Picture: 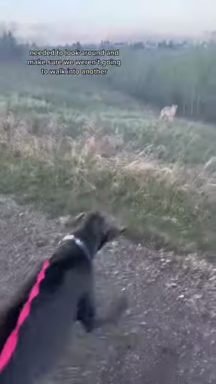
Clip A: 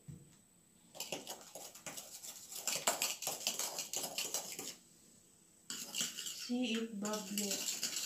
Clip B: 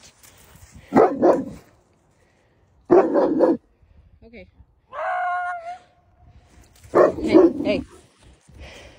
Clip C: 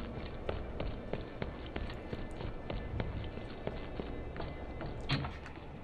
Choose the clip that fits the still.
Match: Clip B